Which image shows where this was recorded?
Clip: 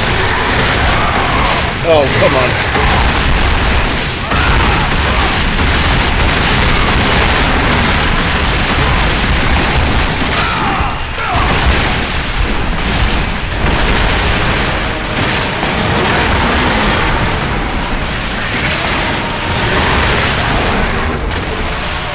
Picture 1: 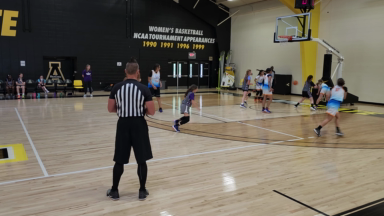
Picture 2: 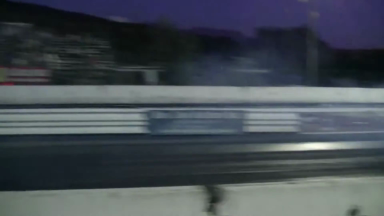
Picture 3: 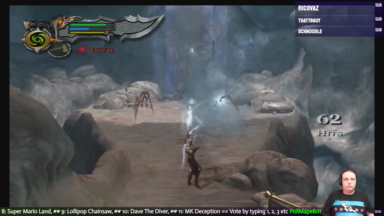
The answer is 3